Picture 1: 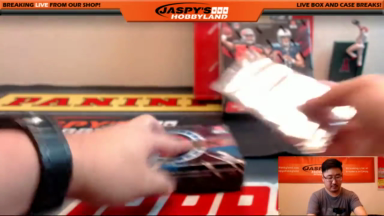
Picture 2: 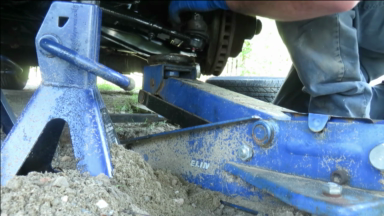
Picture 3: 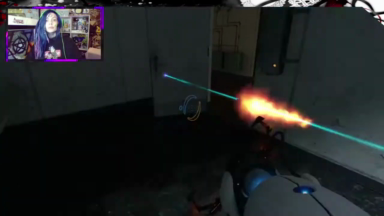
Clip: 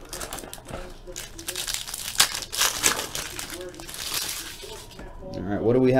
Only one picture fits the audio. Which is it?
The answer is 1